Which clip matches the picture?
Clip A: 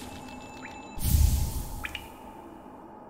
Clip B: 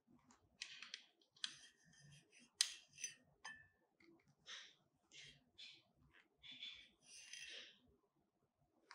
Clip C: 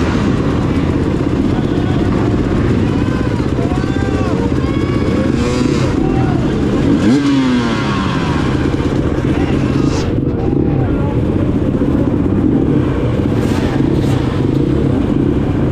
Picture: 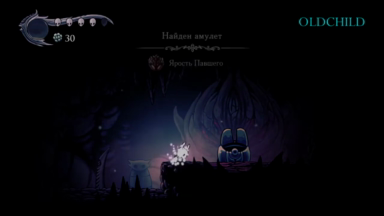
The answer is A